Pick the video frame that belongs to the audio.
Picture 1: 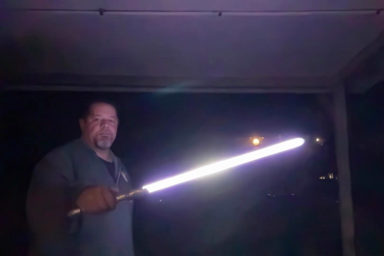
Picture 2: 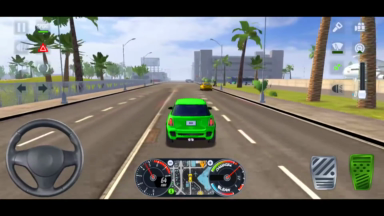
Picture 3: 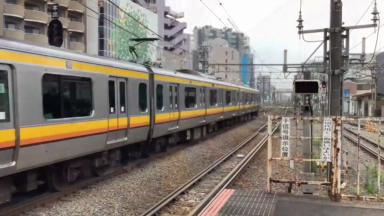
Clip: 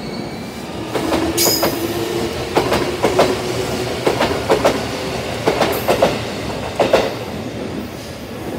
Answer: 3